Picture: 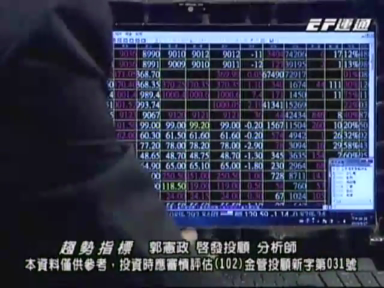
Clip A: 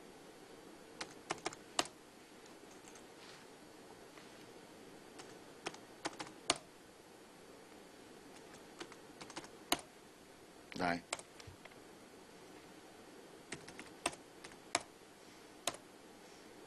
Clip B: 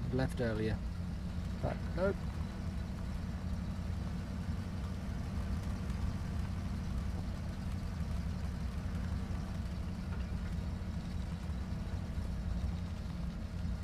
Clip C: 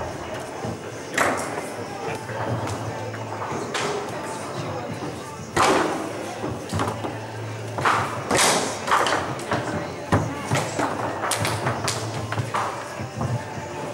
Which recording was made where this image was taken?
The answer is A